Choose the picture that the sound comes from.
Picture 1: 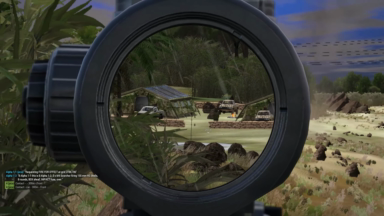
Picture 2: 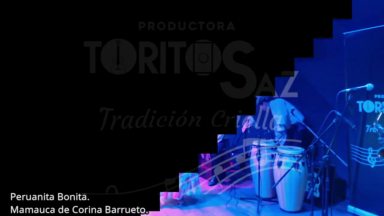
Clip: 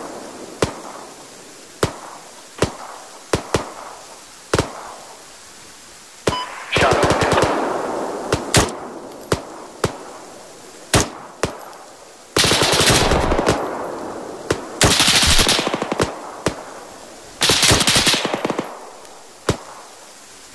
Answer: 1